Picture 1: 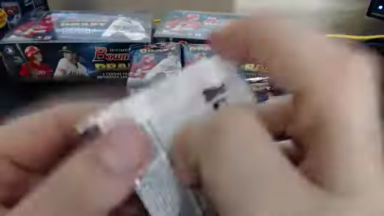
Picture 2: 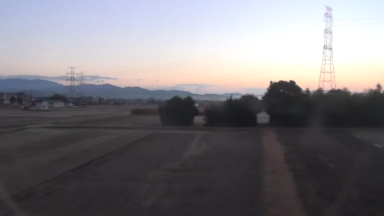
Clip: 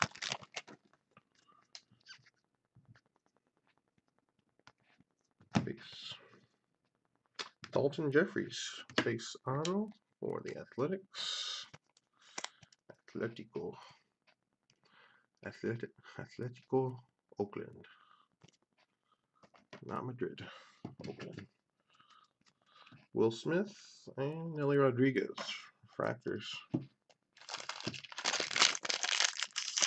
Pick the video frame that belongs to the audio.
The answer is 1